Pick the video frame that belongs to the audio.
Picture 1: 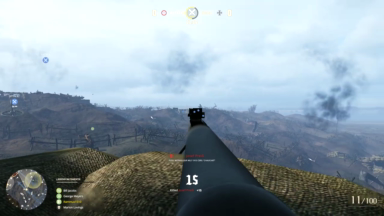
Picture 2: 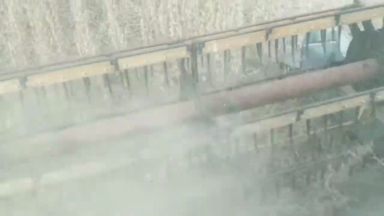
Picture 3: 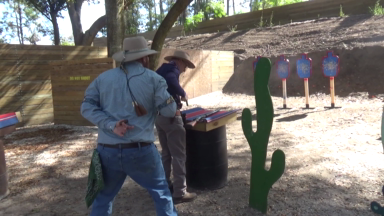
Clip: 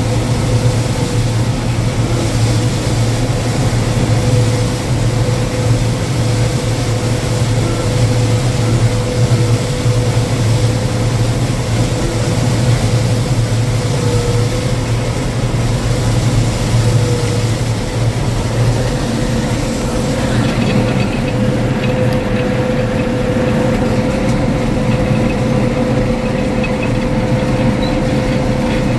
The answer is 2